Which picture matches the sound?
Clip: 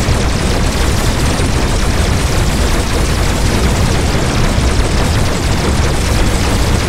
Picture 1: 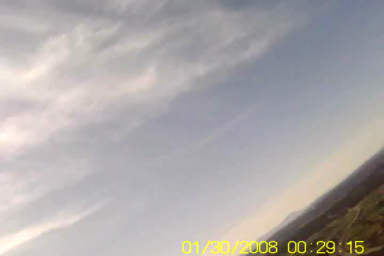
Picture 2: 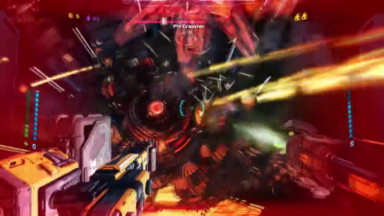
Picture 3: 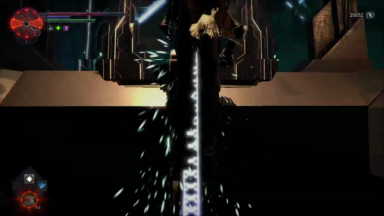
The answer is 2